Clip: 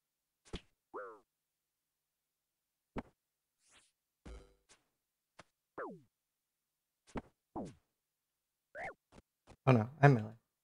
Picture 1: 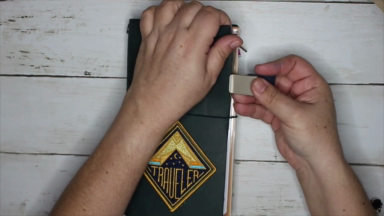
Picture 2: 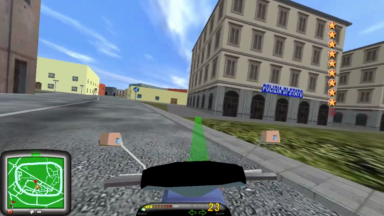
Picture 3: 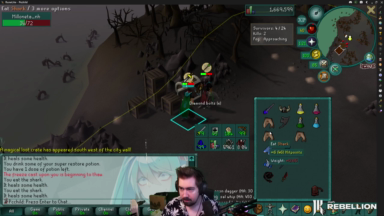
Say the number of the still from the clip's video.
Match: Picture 3